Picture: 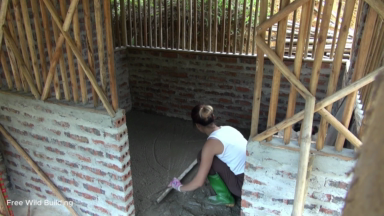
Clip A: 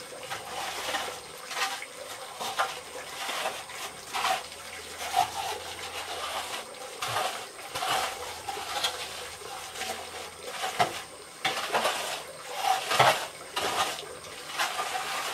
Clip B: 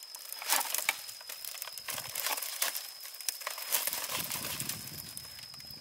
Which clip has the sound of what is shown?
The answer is A